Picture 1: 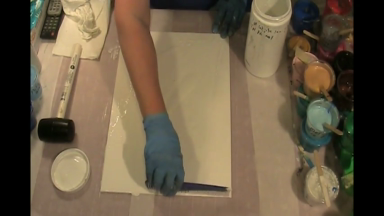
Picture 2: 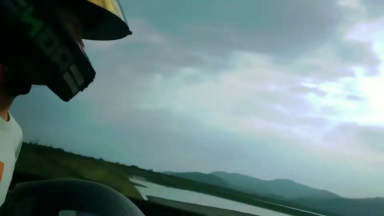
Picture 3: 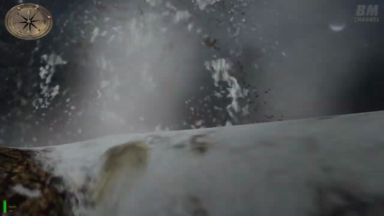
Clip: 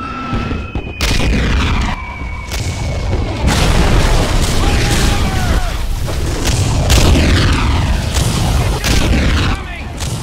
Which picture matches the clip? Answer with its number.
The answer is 3